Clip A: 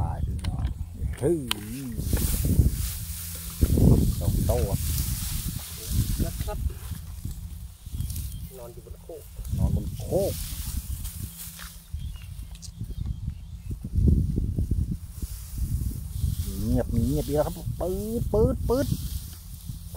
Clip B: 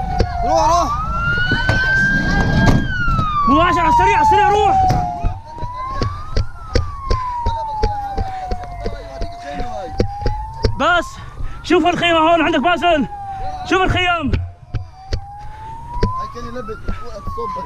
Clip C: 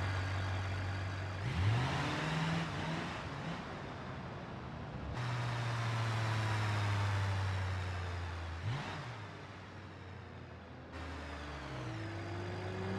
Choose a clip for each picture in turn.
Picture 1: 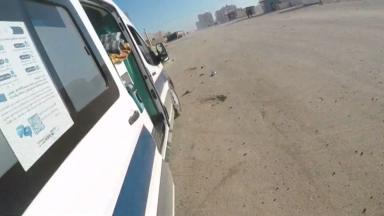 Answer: B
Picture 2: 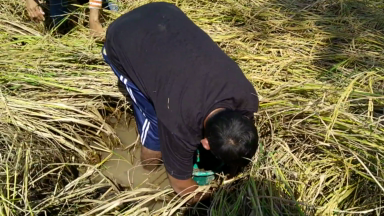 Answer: A